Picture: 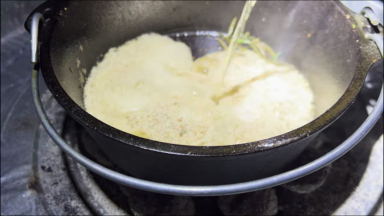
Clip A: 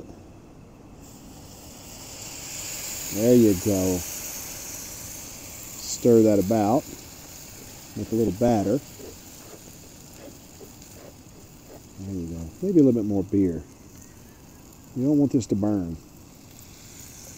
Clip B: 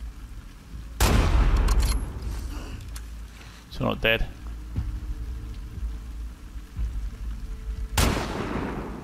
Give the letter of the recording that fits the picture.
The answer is A